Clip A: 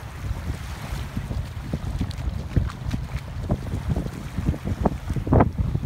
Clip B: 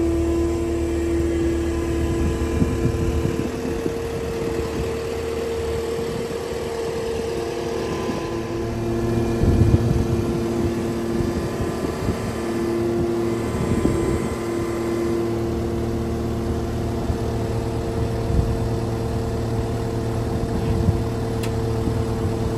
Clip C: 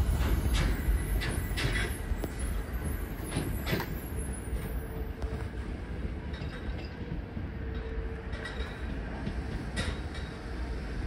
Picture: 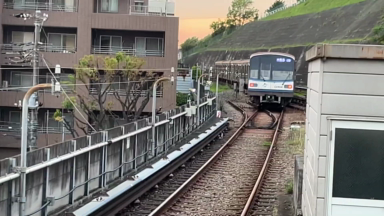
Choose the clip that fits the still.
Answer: C